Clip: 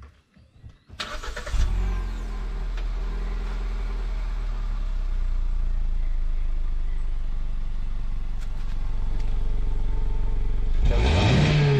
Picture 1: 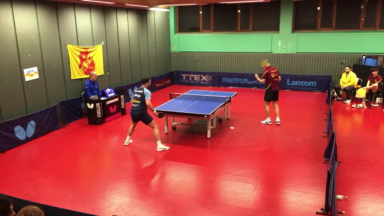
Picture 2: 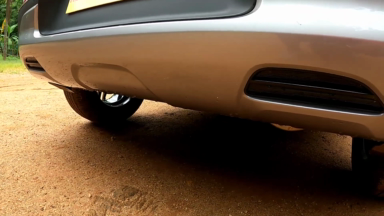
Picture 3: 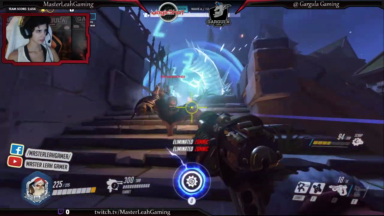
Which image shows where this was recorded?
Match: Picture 2